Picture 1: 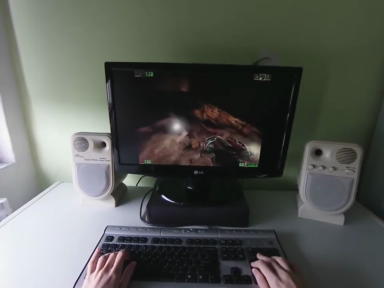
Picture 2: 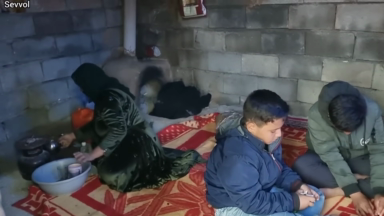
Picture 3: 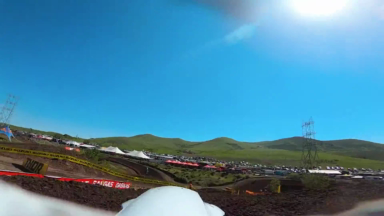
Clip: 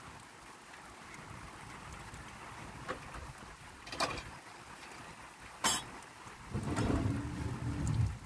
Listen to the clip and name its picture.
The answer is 2